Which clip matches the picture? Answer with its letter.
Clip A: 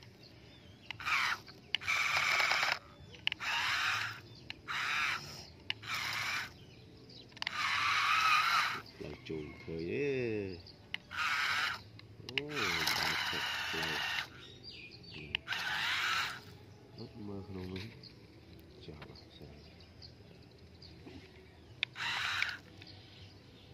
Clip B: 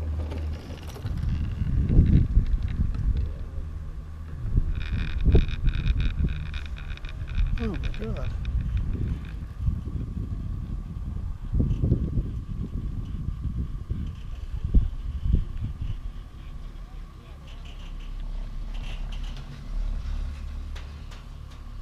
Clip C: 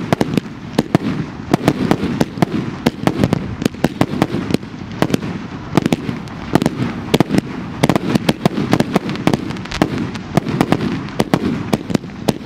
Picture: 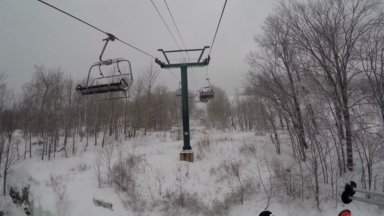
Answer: B